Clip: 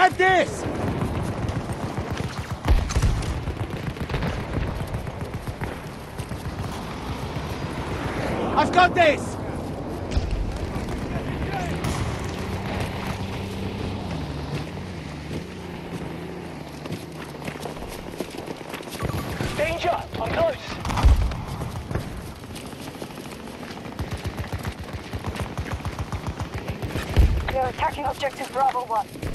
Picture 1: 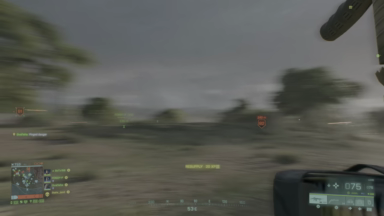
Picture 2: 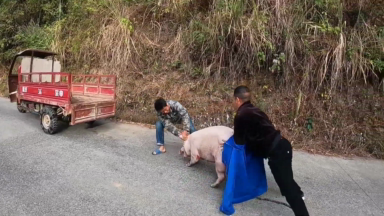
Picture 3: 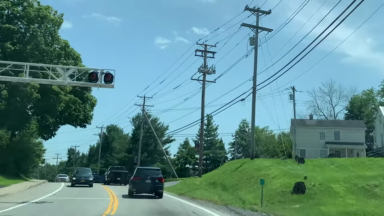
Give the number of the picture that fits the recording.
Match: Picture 1